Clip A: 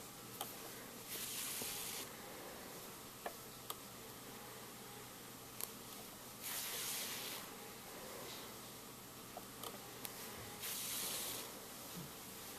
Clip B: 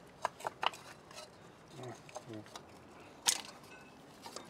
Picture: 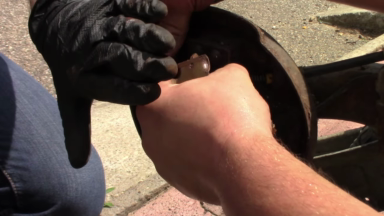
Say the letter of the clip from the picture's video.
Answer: B